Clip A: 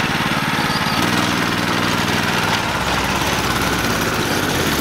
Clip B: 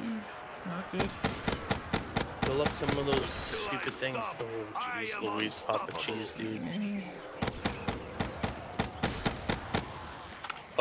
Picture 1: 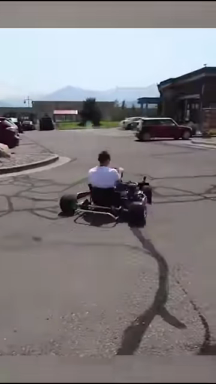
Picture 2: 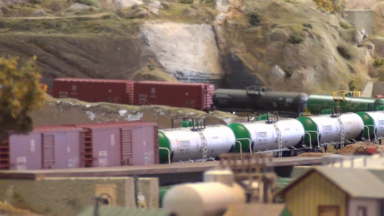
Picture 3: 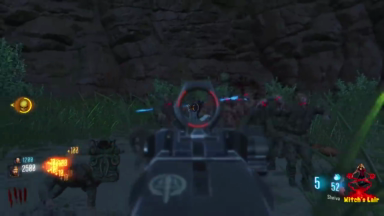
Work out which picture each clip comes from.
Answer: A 1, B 3